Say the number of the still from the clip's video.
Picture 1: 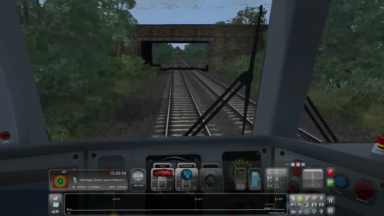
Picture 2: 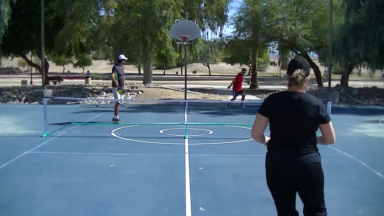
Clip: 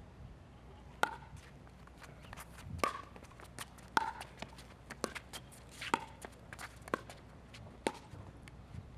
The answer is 2